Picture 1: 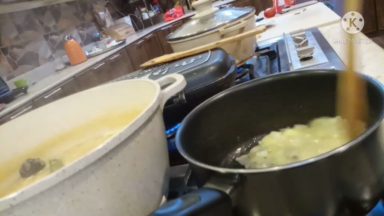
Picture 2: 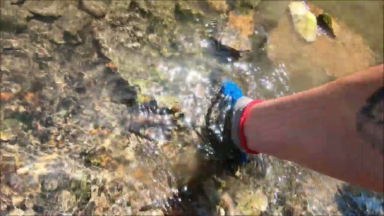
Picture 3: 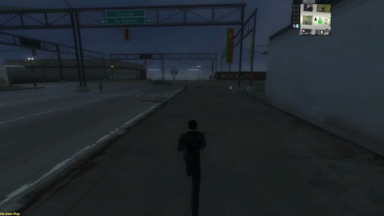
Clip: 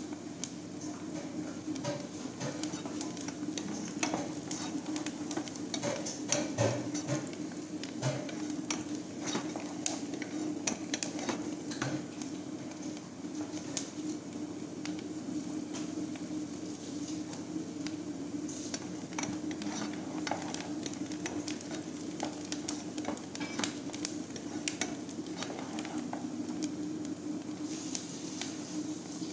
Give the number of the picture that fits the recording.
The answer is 1